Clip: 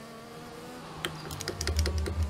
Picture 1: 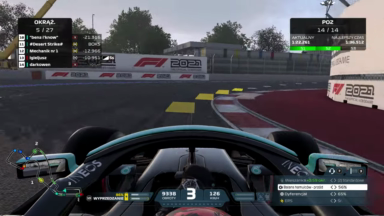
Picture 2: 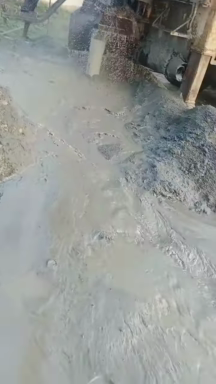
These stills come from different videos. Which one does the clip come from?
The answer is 1